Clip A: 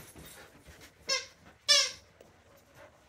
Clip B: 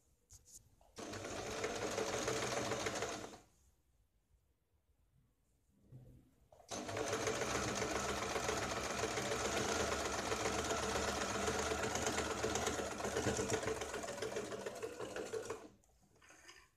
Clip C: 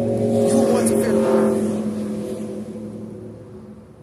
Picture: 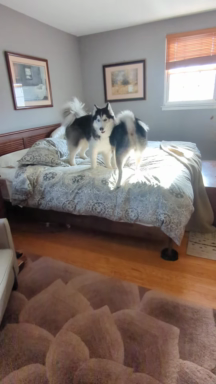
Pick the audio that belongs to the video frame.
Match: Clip A